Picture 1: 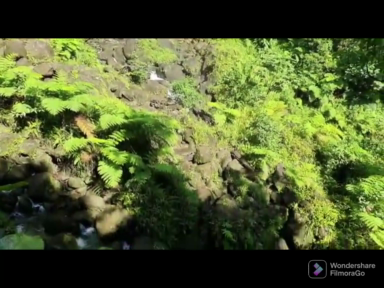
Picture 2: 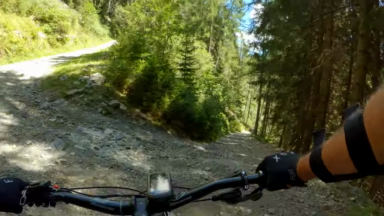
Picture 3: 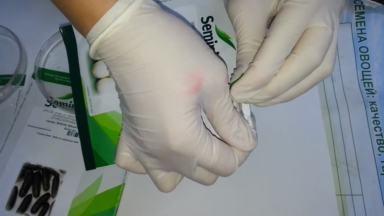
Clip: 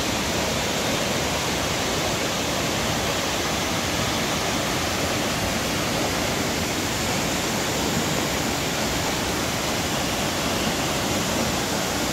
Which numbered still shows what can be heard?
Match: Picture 1